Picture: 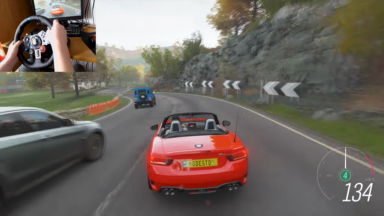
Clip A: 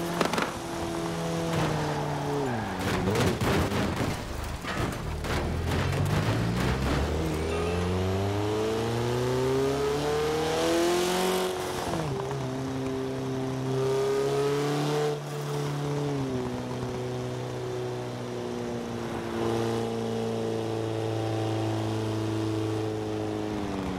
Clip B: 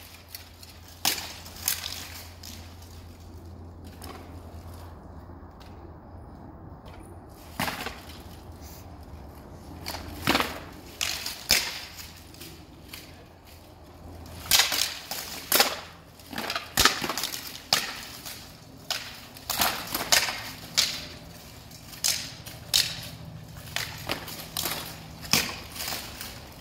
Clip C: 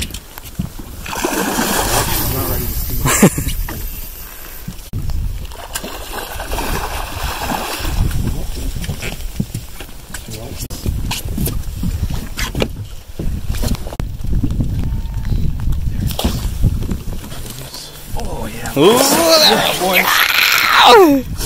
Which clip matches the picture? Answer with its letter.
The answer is A